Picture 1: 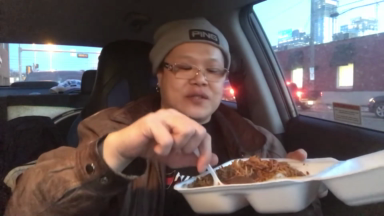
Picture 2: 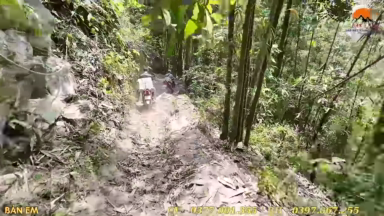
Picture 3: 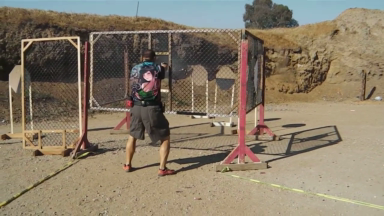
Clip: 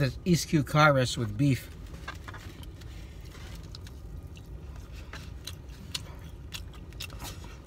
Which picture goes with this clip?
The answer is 1